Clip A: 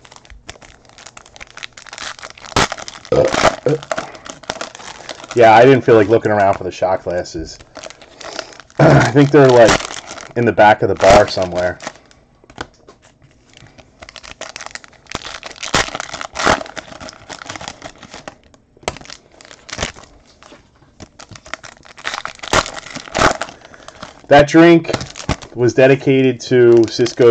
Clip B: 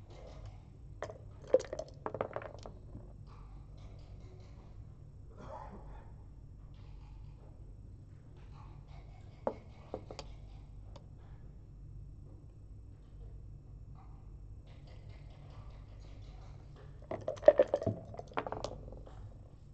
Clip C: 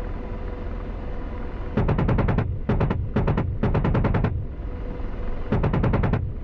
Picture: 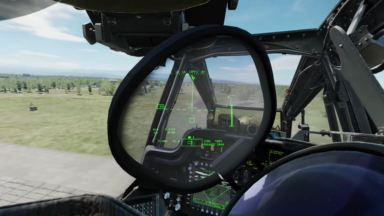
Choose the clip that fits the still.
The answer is C